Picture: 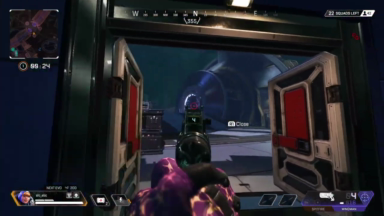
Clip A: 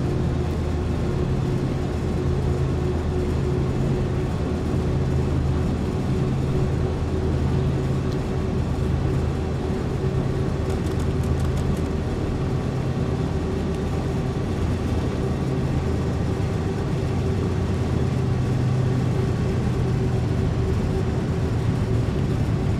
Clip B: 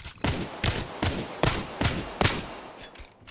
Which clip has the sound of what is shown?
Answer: B